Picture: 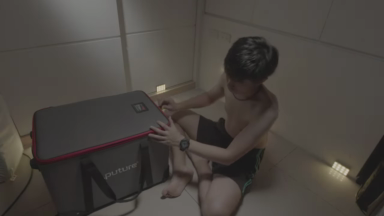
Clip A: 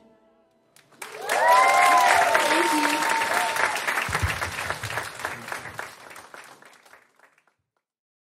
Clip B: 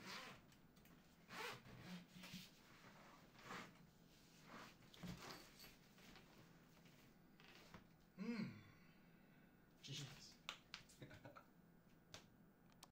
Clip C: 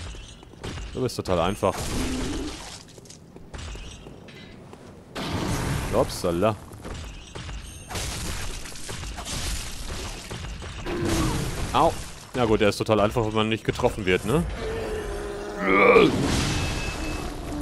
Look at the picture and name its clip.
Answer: B